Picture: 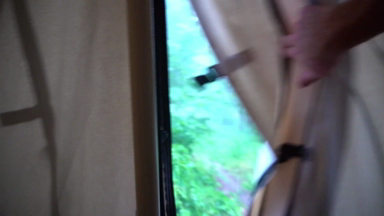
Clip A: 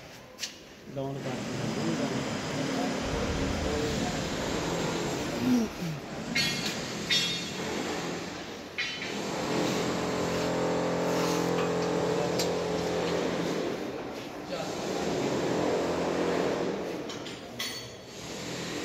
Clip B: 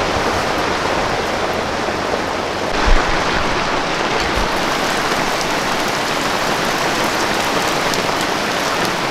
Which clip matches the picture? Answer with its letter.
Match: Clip B